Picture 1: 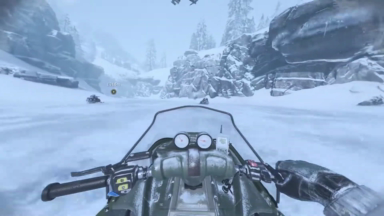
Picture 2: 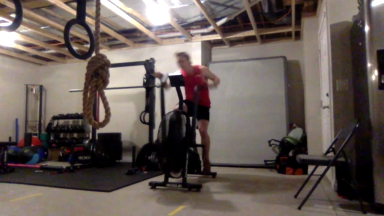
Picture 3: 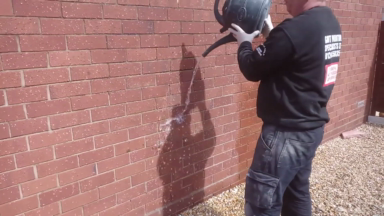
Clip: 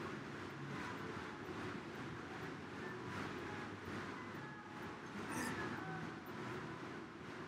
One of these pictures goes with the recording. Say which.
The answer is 2